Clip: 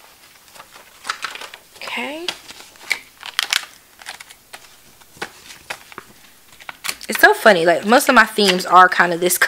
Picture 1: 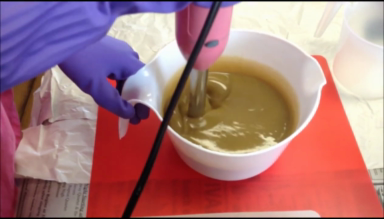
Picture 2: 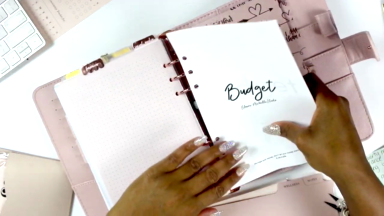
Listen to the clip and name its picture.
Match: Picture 2